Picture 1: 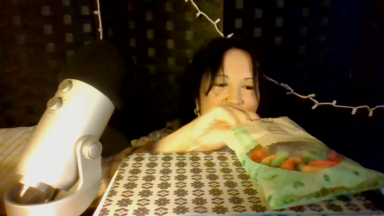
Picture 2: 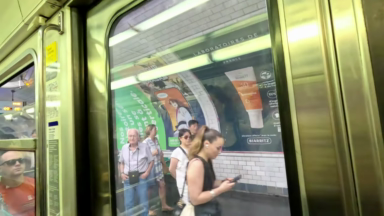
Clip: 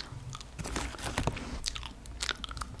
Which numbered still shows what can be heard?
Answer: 1